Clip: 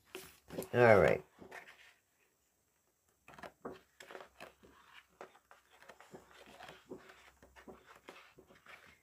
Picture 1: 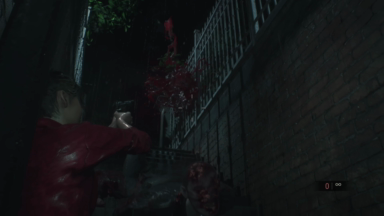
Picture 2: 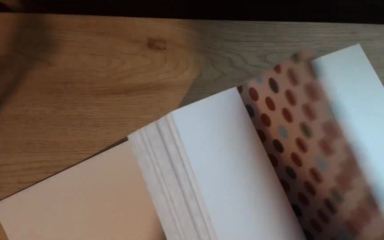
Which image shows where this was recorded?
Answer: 2